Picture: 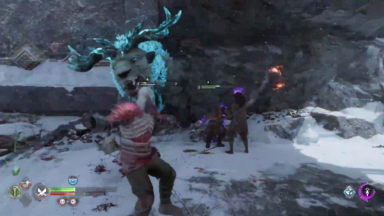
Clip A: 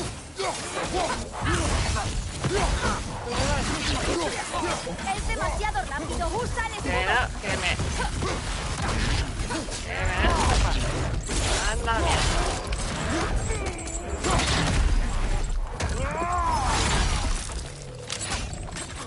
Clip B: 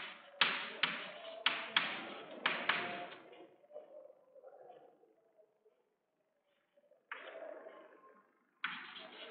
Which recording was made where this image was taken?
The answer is A